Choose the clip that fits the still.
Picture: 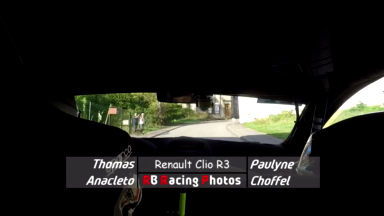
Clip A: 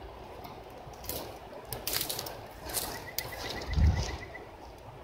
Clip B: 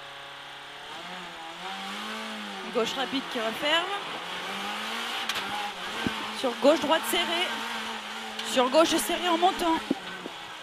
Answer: B